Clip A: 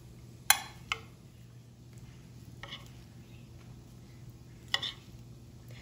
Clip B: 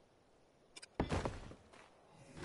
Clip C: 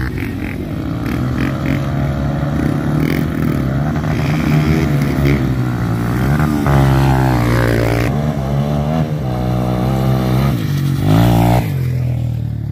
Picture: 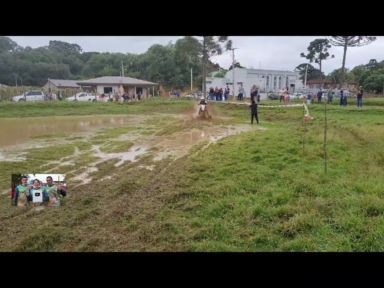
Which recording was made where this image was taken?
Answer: C